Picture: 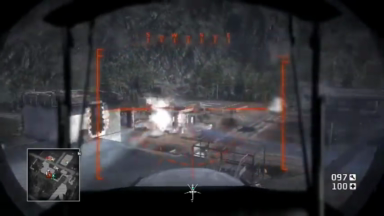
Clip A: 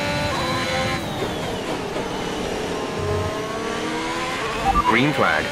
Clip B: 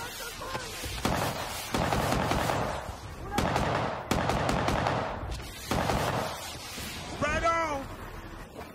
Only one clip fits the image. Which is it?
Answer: B